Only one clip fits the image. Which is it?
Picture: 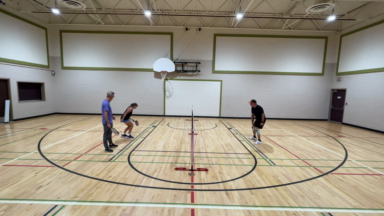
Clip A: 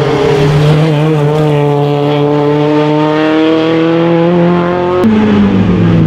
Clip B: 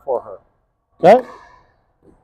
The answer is B